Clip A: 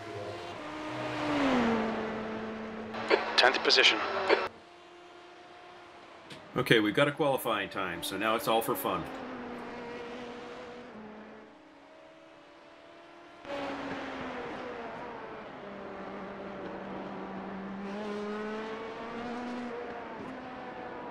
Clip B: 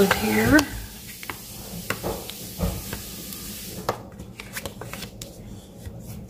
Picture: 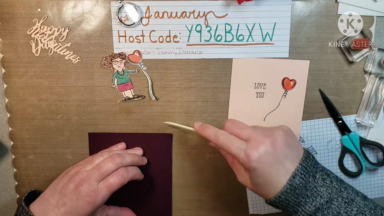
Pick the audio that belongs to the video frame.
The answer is B